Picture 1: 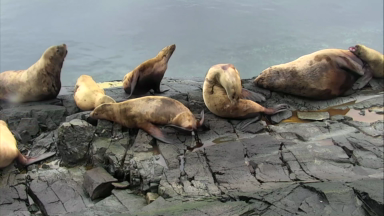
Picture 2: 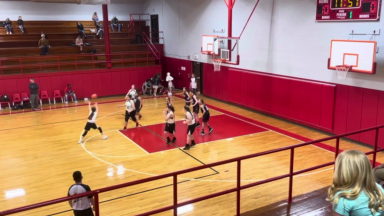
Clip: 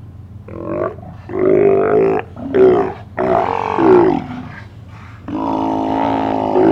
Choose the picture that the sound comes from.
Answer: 1